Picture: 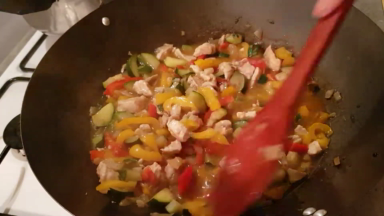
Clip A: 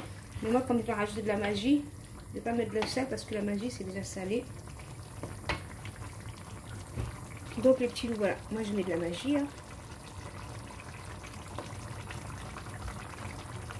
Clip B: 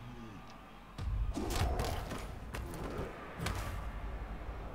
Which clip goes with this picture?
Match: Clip A